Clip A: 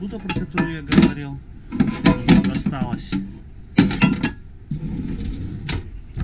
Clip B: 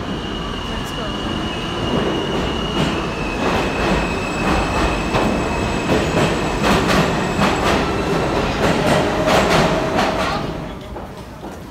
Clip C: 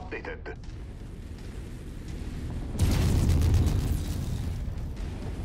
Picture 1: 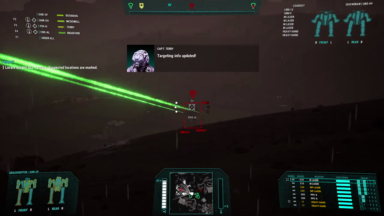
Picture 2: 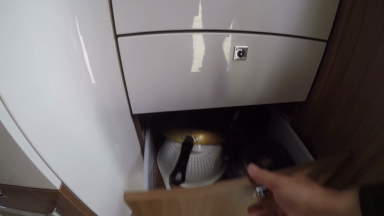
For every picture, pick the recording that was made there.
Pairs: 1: C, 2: A